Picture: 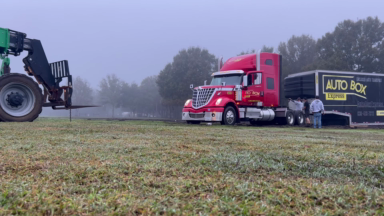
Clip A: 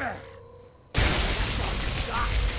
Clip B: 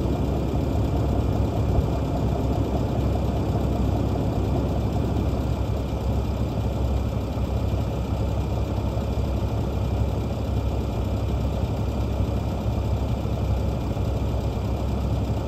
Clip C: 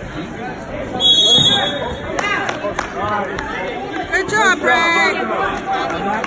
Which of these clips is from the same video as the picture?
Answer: B